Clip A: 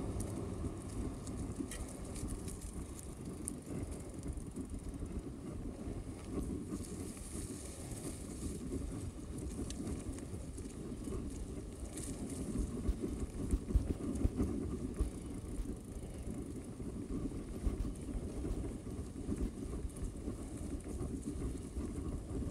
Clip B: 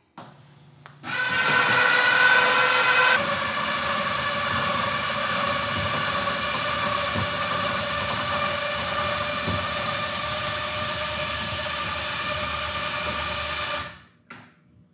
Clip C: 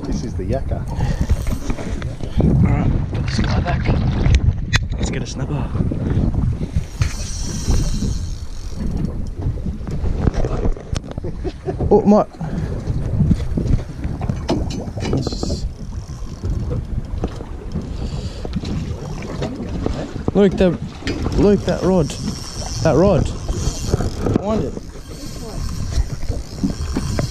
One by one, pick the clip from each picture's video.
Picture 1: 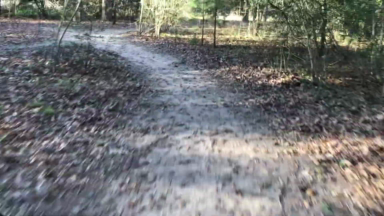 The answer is A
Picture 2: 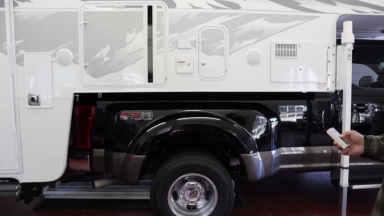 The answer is B